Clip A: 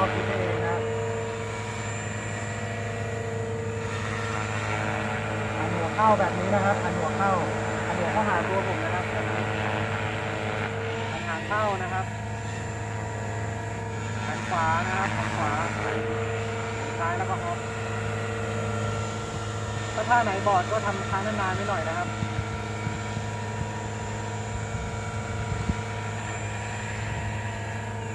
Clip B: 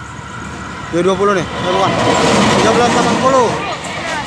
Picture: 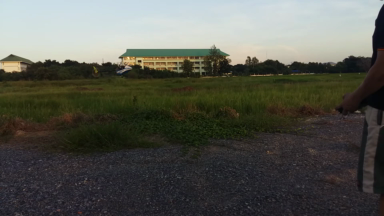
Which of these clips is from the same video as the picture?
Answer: A